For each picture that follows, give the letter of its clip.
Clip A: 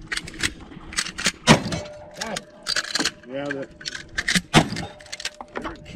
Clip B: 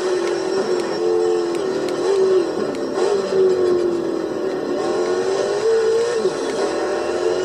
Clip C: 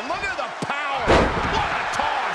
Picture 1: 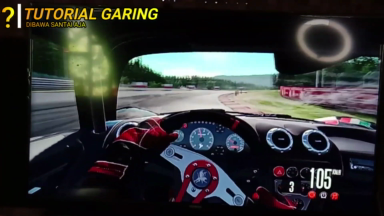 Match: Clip B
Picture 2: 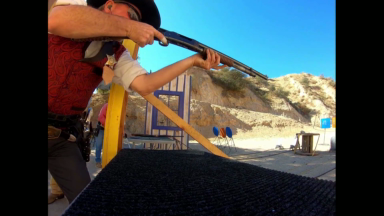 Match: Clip A